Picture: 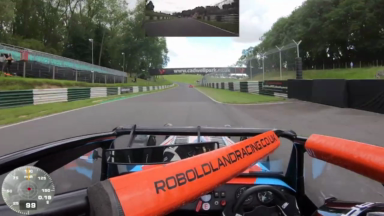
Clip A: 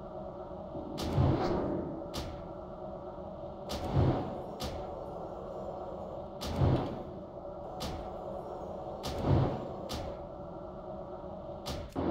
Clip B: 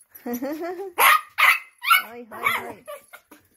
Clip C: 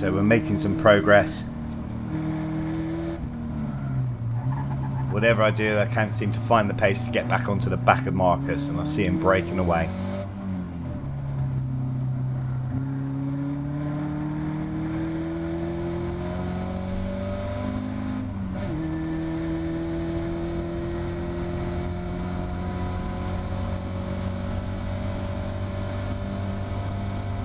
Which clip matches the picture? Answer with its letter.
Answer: C